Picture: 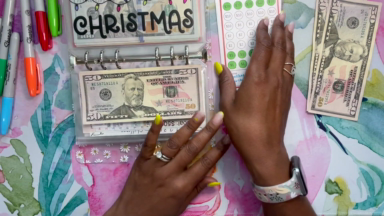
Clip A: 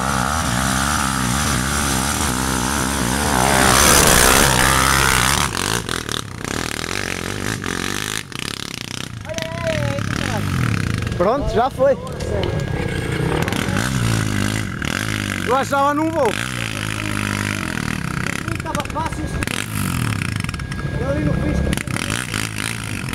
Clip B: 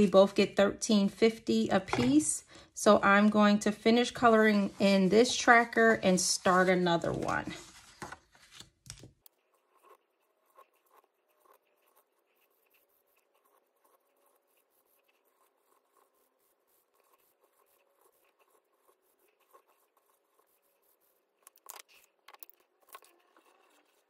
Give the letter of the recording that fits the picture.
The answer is B